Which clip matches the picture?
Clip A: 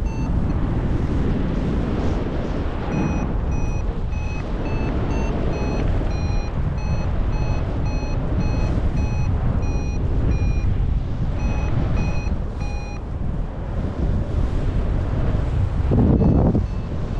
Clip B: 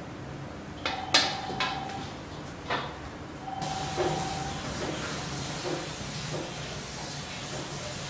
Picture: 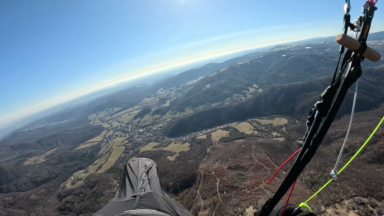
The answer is A